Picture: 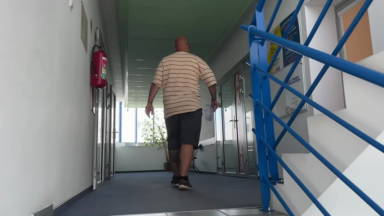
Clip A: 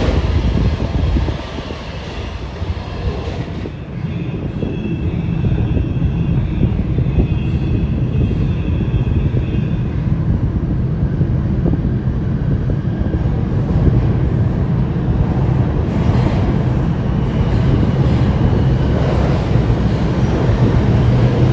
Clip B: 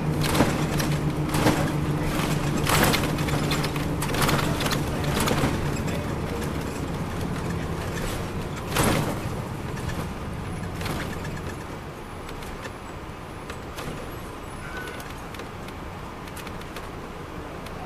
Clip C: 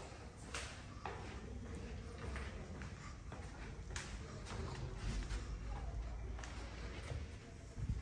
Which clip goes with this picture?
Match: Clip C